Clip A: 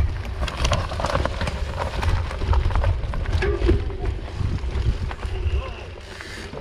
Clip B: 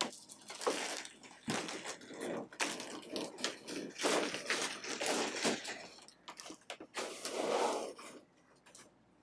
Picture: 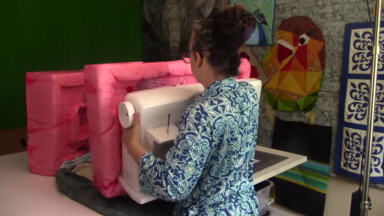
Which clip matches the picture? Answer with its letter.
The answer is B